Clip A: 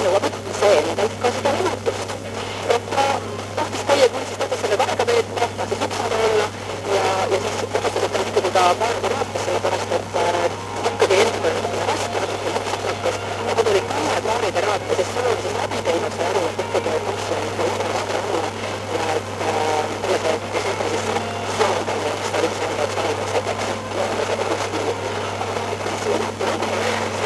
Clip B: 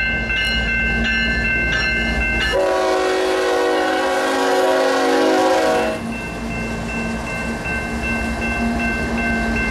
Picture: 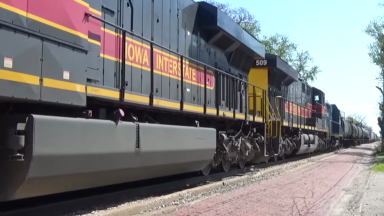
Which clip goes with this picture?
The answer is B